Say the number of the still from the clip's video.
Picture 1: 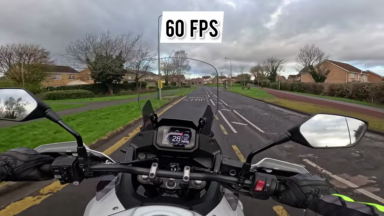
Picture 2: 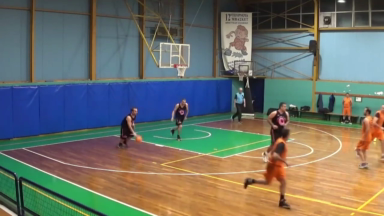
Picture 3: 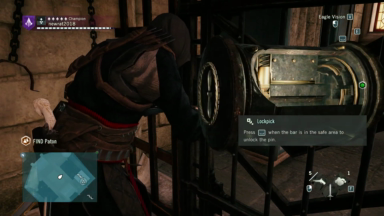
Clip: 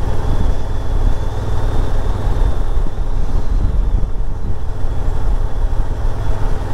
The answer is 1